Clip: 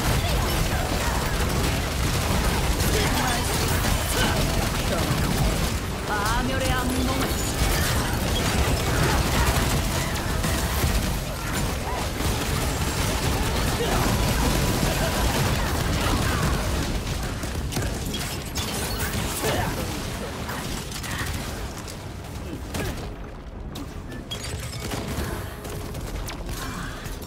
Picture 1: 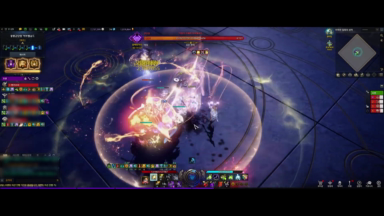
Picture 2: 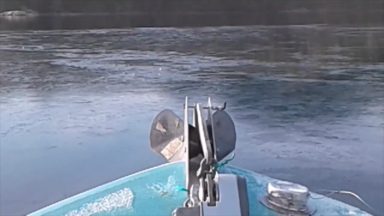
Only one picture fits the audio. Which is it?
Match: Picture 1